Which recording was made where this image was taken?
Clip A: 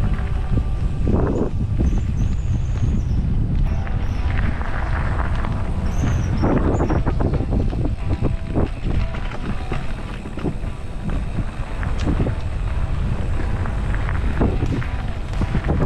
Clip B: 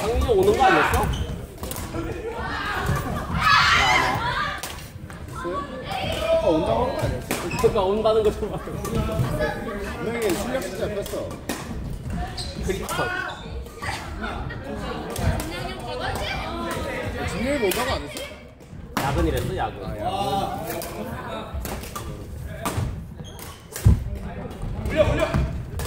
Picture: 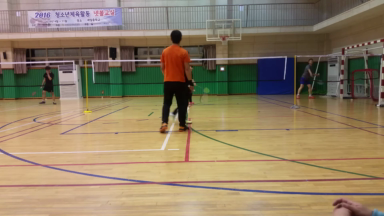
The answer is B